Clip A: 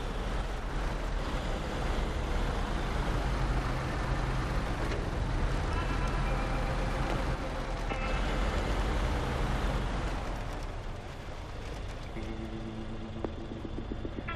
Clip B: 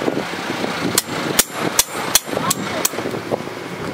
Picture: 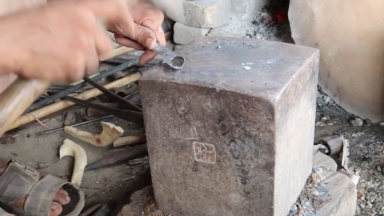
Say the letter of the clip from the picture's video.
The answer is B